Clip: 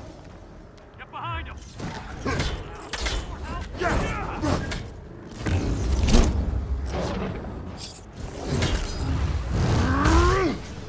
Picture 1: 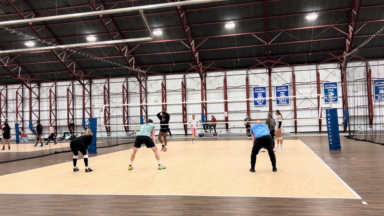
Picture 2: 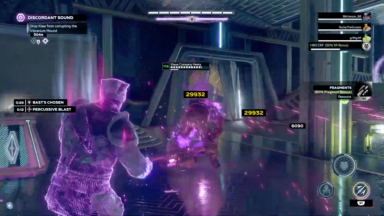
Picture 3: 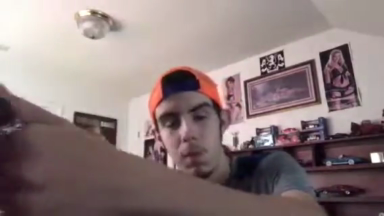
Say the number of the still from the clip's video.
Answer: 2